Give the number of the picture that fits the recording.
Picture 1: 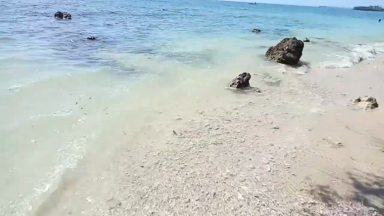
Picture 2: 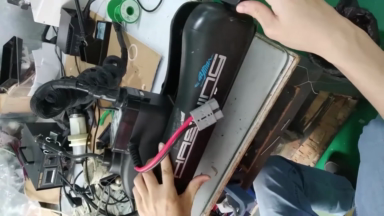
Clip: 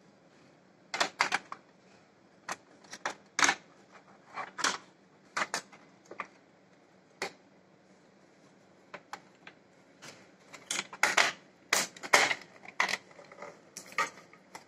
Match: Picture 2